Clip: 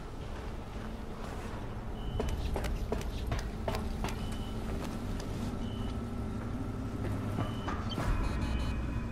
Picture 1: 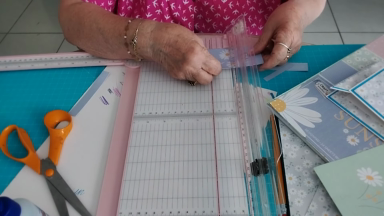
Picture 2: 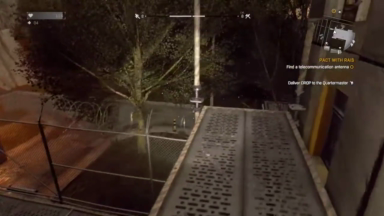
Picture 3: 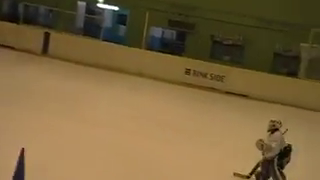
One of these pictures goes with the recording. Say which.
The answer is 2